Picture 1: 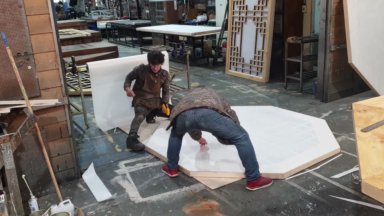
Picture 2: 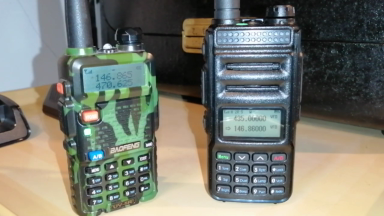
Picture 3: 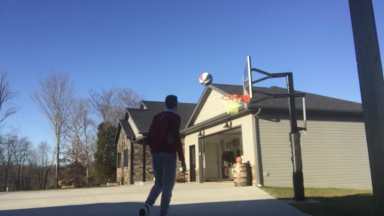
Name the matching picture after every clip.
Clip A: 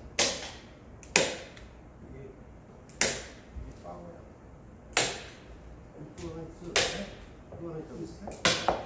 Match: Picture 1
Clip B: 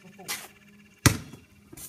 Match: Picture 3